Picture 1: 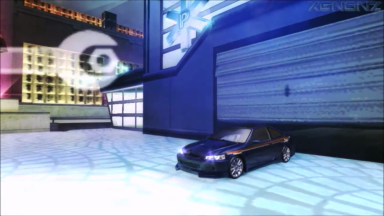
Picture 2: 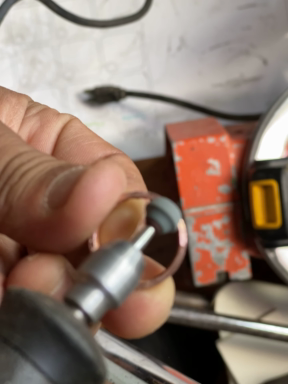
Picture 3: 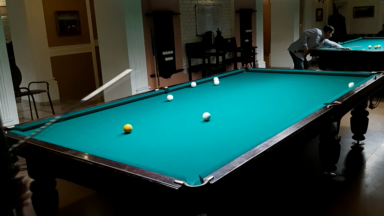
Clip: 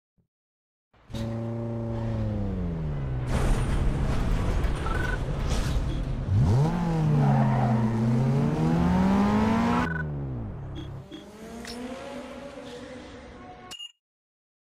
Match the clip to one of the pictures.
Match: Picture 1